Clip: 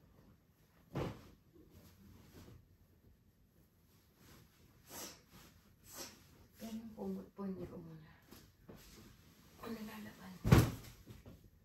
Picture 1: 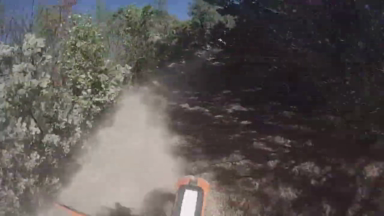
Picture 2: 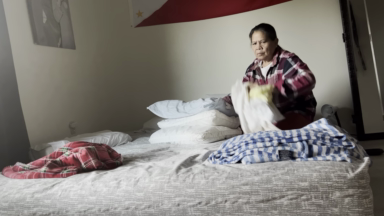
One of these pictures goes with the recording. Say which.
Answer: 2